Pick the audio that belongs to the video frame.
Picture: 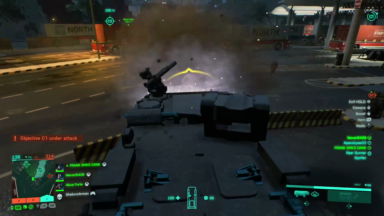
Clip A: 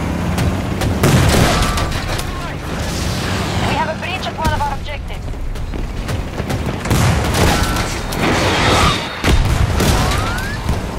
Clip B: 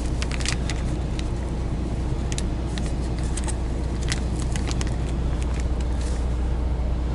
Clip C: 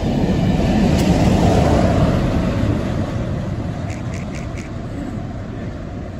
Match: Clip A